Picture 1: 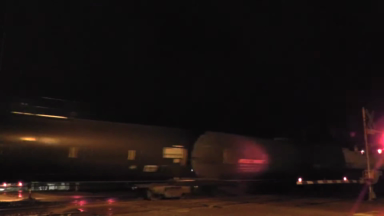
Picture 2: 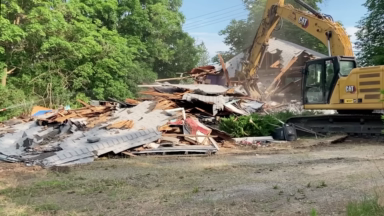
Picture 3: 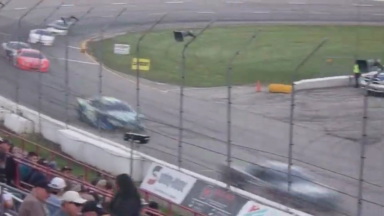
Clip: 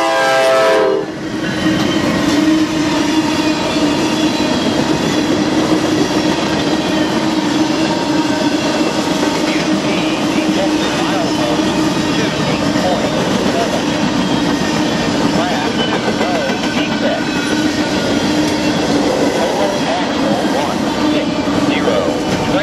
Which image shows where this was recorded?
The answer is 1